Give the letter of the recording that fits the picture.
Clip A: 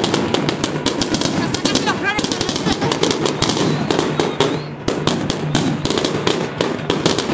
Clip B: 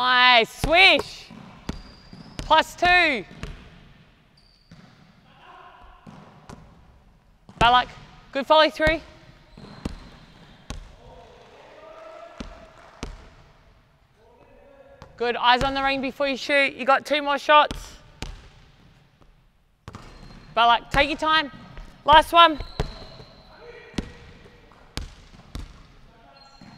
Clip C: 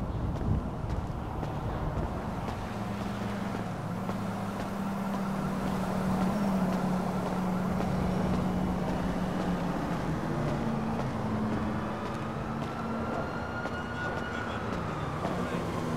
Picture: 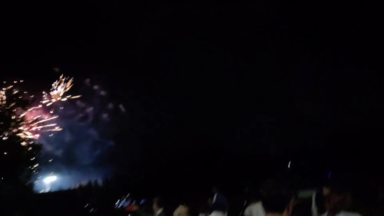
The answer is A